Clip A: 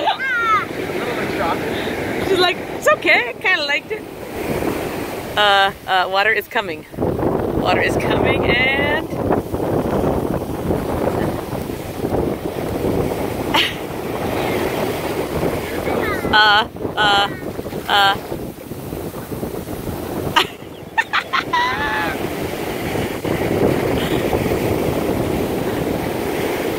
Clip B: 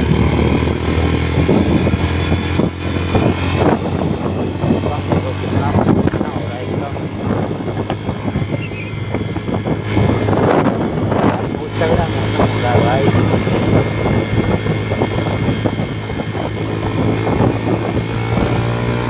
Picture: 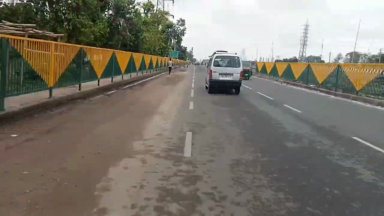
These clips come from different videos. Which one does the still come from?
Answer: B